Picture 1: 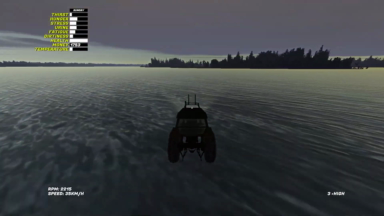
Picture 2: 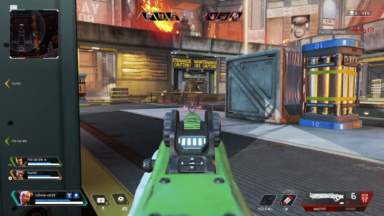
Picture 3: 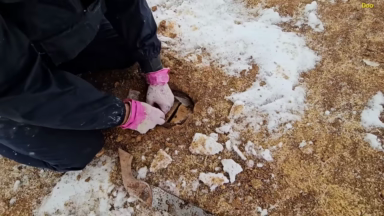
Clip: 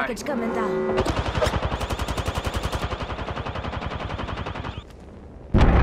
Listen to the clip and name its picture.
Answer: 2